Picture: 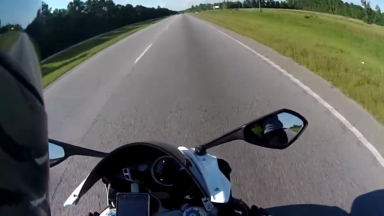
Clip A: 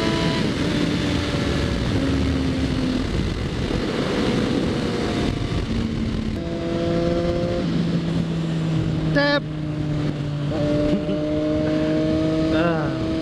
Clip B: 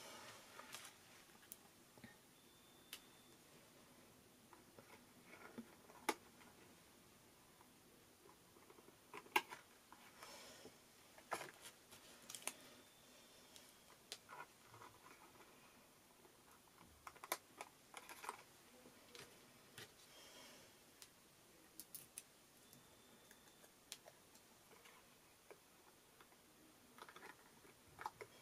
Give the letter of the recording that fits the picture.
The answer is A